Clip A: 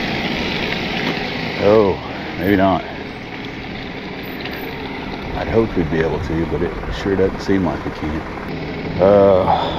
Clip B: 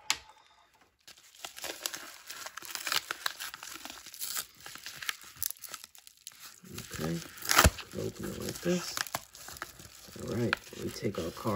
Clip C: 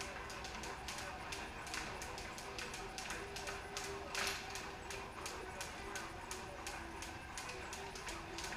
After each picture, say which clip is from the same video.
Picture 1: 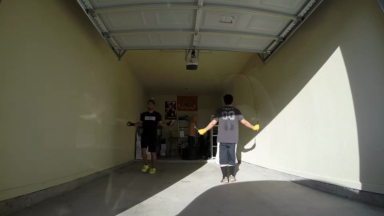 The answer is C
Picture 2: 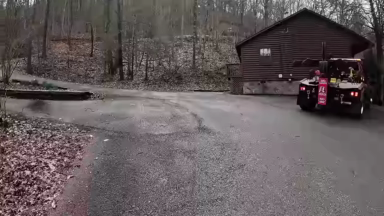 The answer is A